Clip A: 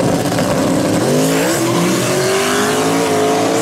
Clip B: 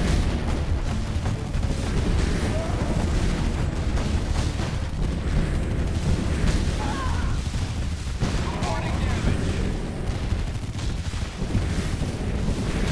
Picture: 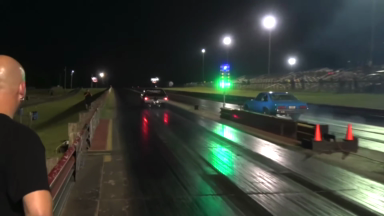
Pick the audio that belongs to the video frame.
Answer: A